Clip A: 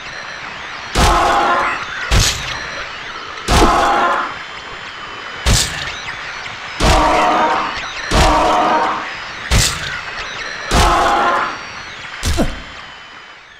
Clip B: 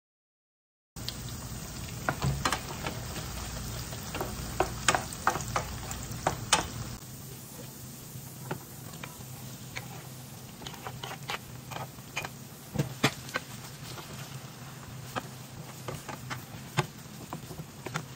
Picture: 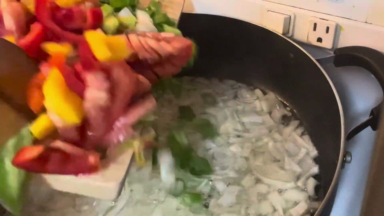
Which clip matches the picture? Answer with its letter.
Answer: B